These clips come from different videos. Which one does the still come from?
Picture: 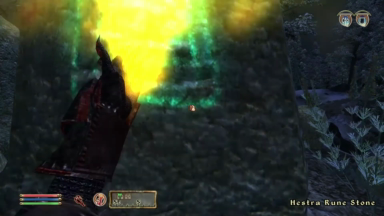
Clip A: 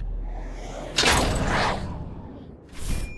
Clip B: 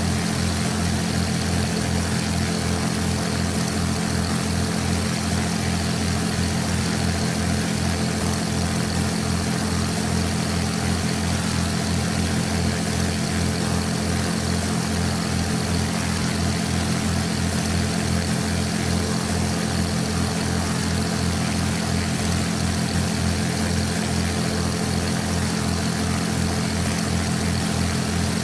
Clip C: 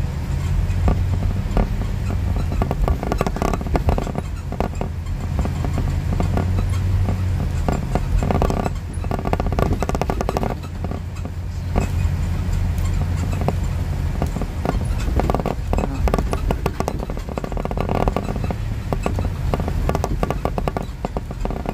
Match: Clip A